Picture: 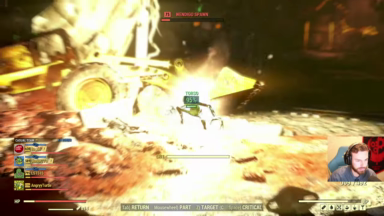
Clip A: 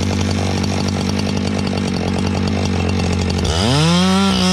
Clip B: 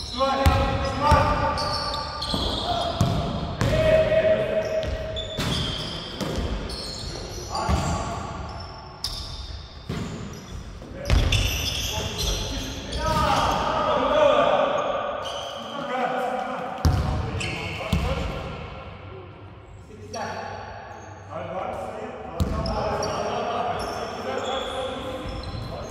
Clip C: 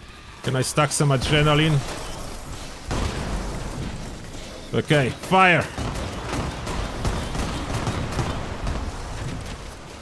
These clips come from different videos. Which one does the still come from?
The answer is C